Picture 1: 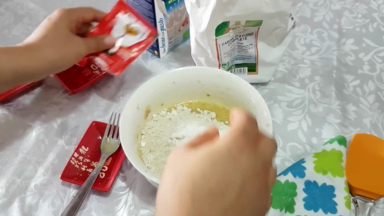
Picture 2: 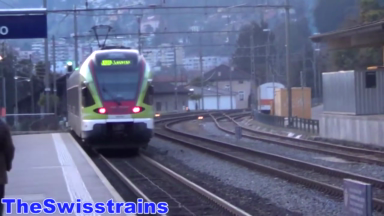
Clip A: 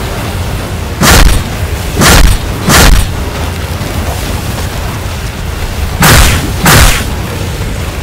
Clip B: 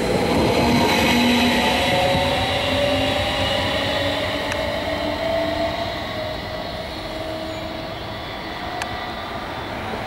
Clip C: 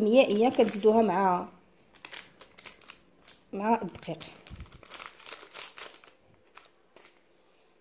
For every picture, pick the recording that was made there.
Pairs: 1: C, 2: B